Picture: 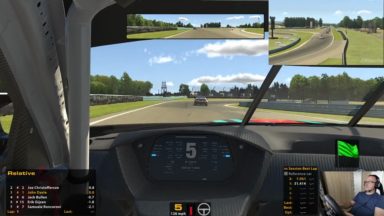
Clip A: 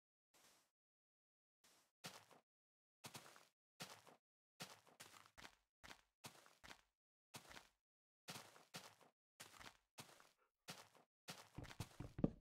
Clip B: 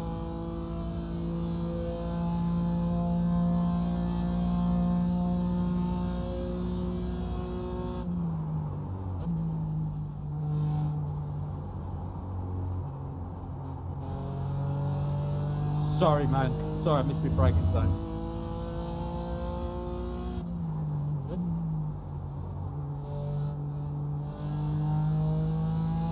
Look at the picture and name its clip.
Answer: B